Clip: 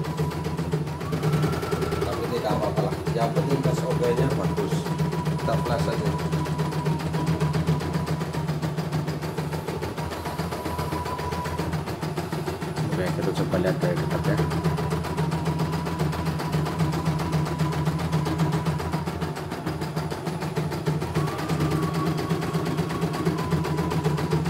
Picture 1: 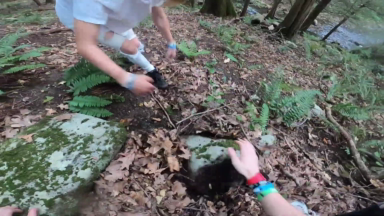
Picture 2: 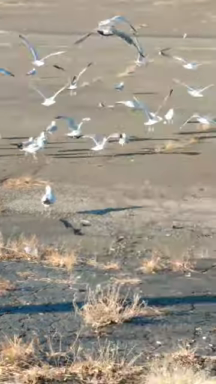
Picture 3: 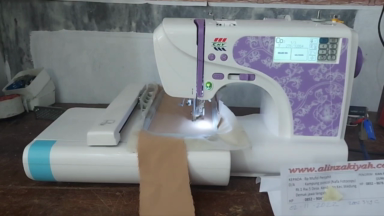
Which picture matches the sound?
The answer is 3